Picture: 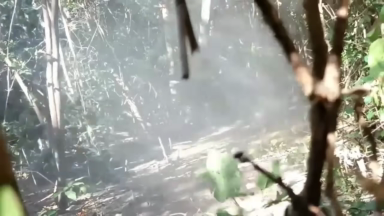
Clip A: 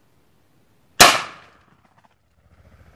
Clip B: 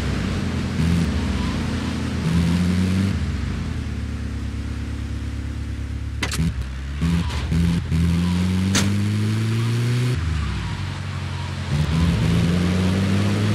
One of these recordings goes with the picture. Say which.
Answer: A